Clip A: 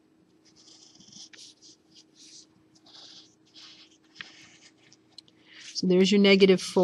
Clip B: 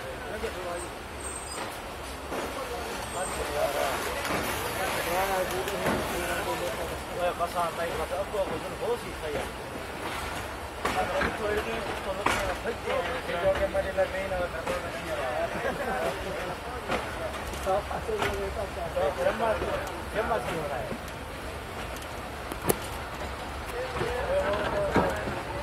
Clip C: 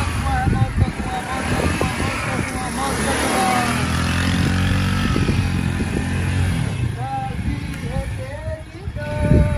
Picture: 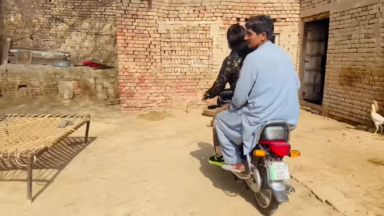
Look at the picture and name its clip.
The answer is C